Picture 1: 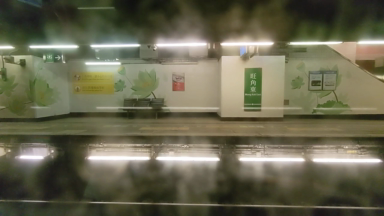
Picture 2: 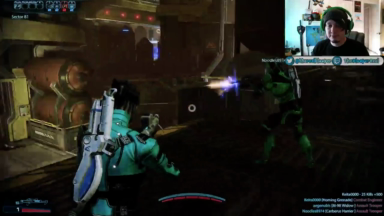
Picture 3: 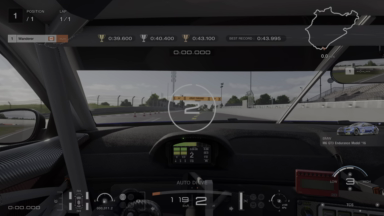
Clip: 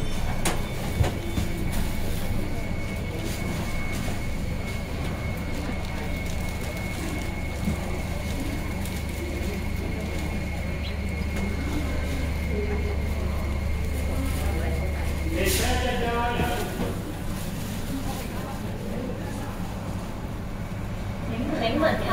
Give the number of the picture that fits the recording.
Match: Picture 1